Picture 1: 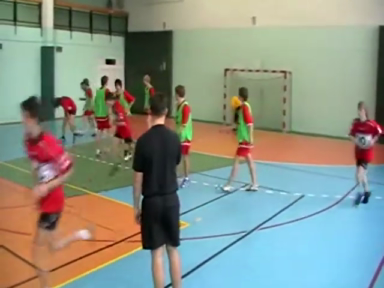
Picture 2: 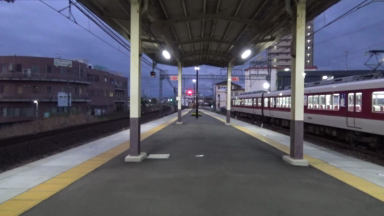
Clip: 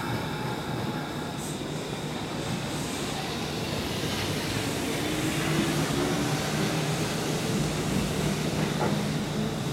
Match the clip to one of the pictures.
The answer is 2